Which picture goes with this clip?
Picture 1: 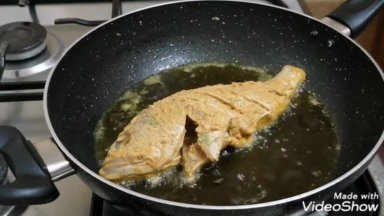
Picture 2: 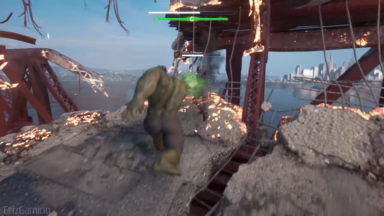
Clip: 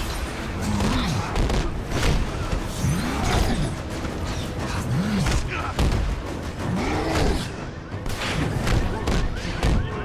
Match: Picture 2